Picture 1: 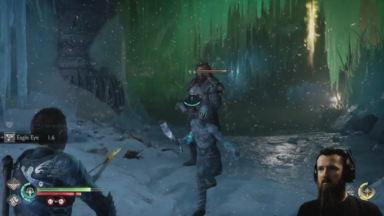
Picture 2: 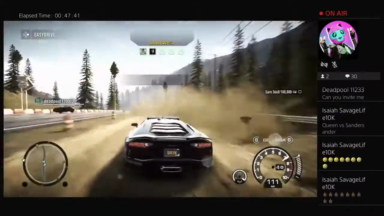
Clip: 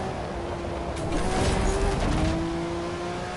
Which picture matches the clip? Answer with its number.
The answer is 2